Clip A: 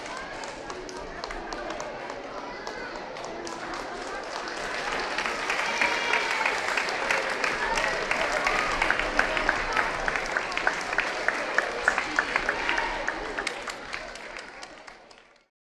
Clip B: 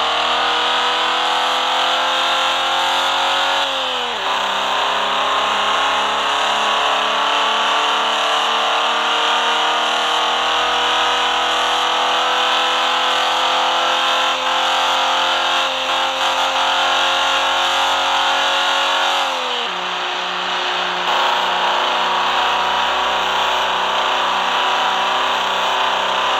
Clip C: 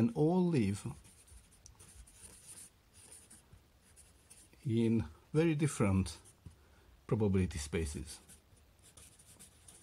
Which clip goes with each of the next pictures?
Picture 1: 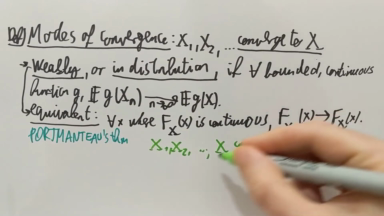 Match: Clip C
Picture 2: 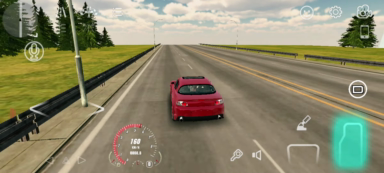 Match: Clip B